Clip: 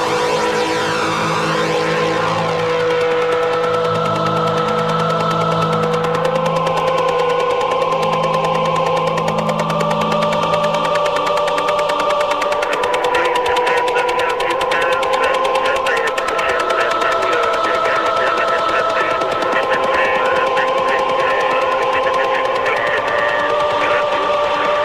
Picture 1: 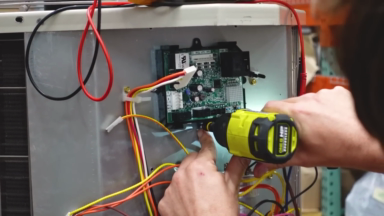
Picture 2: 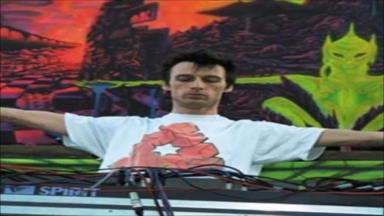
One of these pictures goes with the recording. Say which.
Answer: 2